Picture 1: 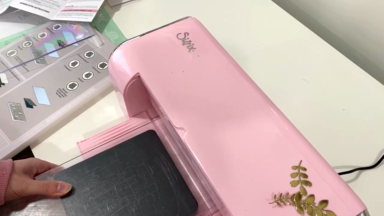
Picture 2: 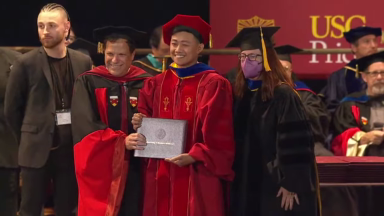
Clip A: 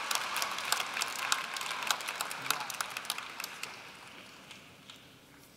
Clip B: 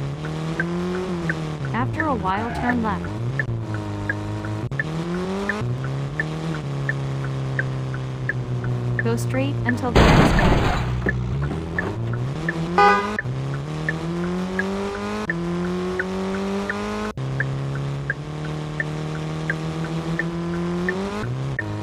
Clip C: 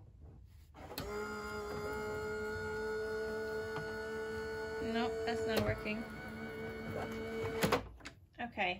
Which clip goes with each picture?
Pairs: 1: C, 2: A